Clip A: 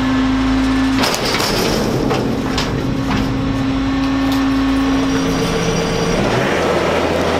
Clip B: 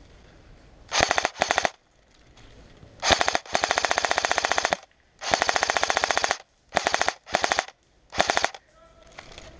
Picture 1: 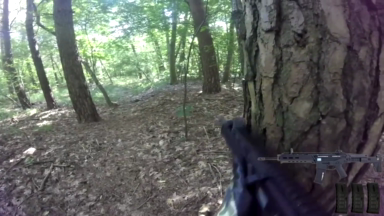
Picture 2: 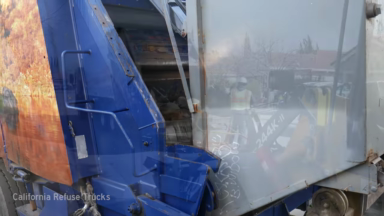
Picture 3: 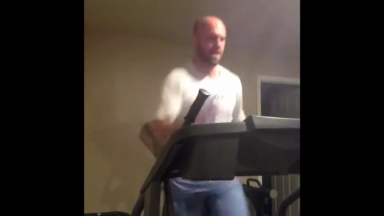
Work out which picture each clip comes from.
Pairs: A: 2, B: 1